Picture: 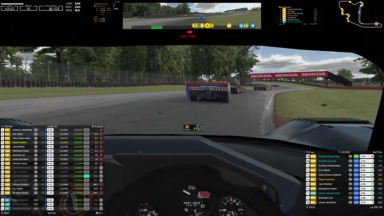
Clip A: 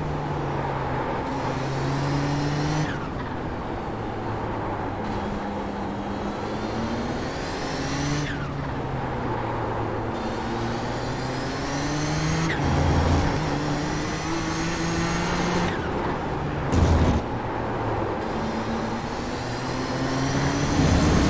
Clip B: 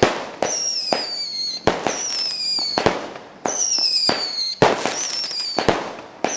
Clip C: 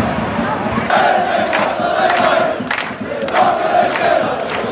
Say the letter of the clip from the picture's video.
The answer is A